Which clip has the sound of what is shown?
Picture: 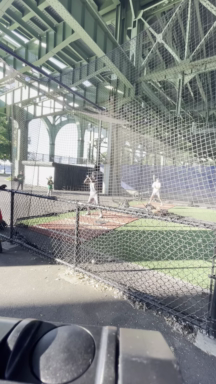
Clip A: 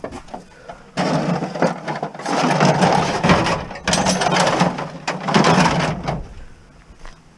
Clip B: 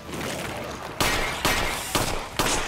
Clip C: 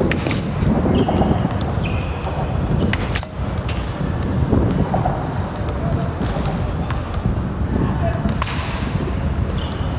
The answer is C